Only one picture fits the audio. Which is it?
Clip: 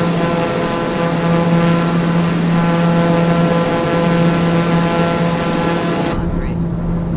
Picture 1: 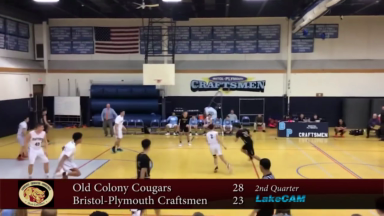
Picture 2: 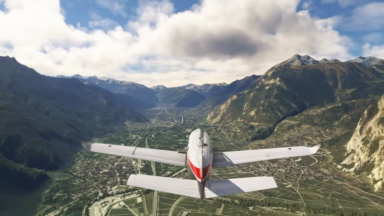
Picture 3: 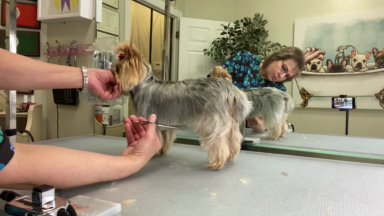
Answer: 2